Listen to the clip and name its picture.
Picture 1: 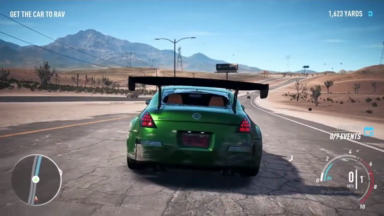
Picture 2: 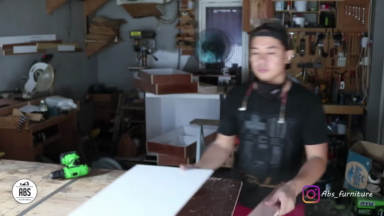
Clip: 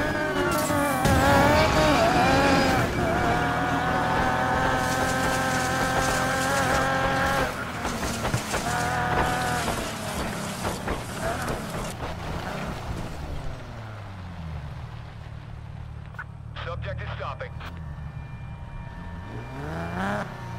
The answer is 1